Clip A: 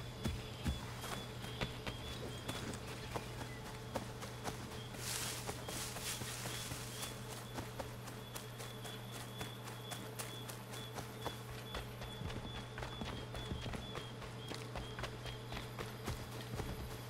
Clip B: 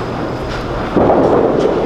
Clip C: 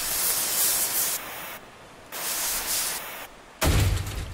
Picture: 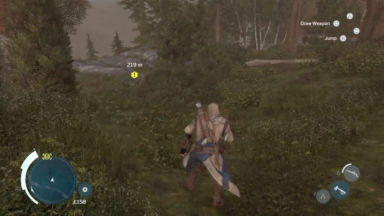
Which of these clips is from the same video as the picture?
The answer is A